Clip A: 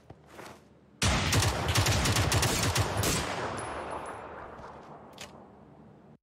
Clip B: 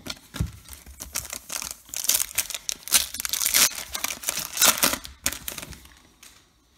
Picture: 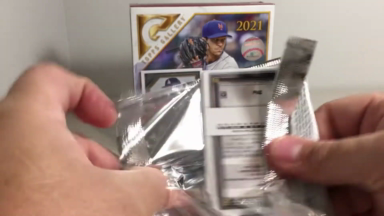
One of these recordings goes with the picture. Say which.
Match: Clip B